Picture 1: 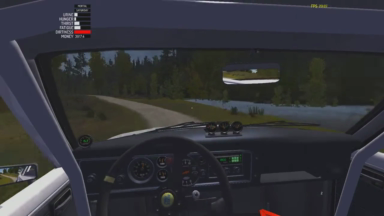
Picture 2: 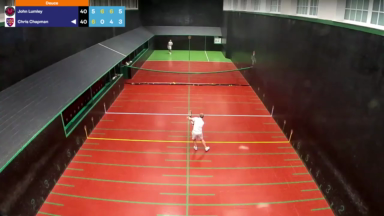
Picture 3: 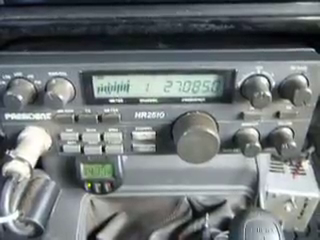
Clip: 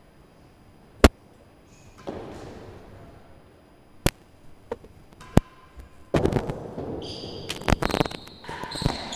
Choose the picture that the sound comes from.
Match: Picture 2